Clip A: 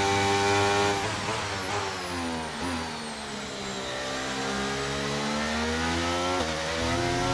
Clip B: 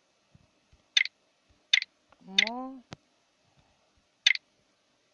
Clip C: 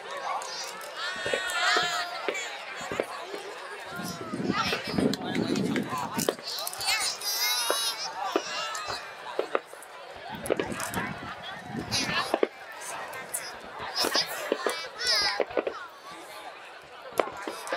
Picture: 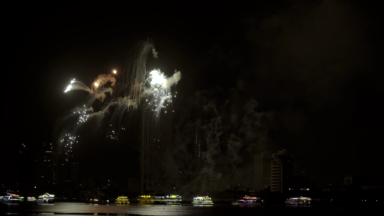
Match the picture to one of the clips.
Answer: C